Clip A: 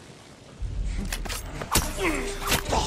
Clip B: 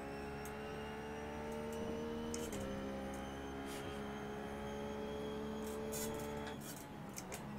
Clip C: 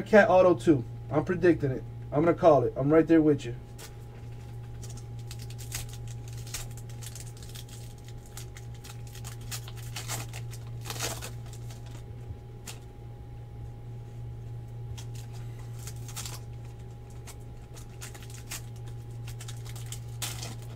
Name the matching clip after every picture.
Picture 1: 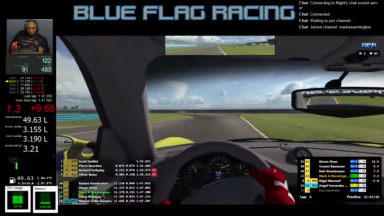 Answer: B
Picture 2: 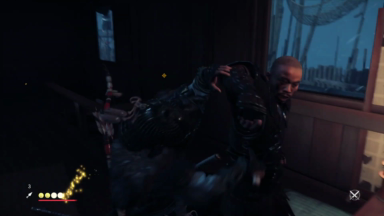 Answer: A